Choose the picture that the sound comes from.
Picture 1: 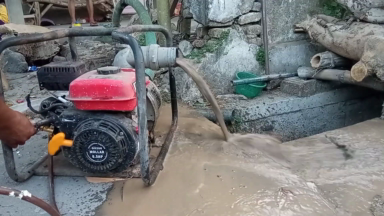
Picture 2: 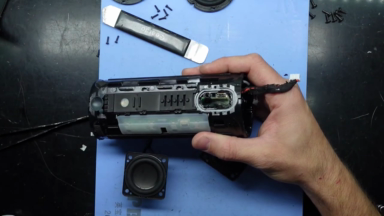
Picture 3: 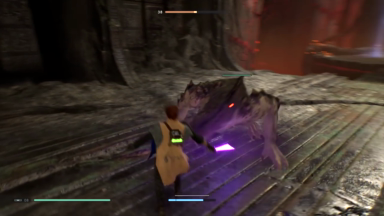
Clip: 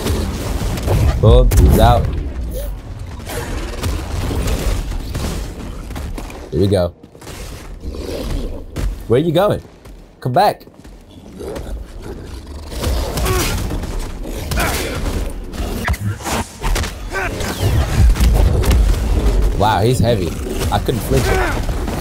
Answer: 3